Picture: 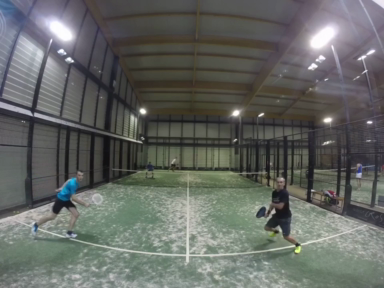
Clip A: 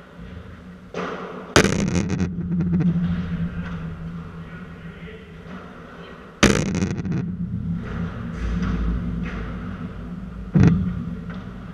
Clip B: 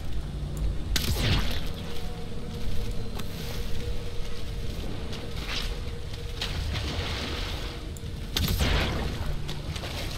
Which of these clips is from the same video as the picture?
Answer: A